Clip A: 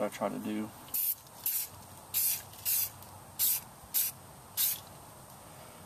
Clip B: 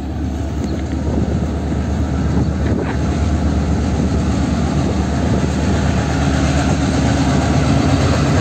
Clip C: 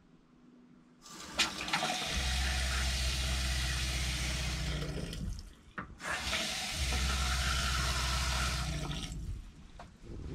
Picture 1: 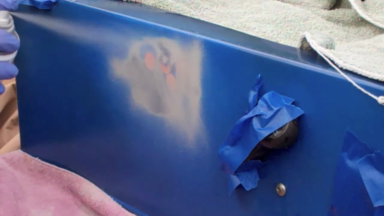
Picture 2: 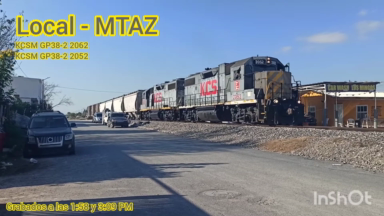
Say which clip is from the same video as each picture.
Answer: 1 A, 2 B